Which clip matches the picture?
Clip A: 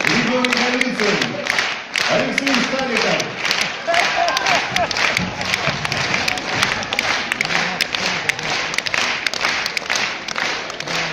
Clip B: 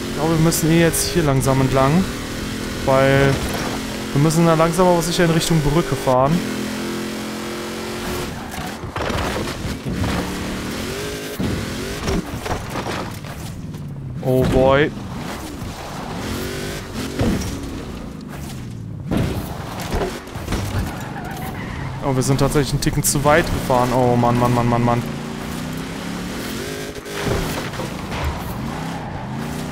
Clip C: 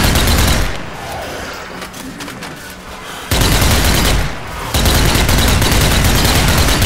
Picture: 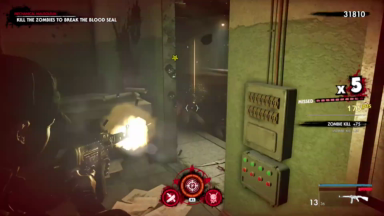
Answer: C